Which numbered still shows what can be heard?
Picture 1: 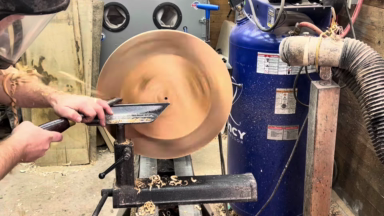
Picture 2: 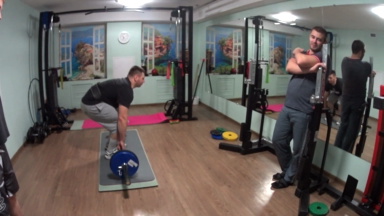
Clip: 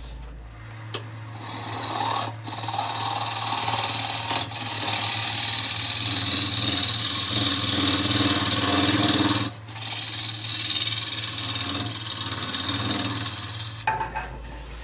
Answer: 1